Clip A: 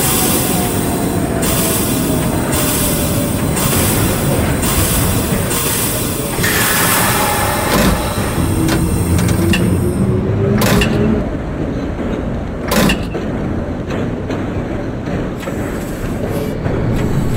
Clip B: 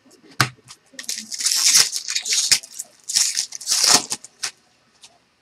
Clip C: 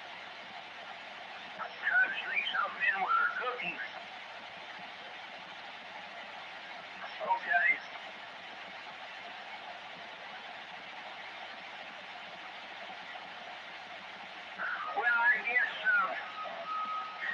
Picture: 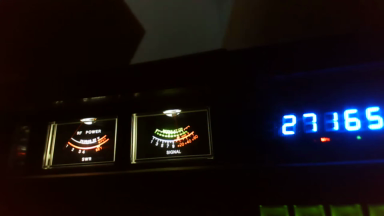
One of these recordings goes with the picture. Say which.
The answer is C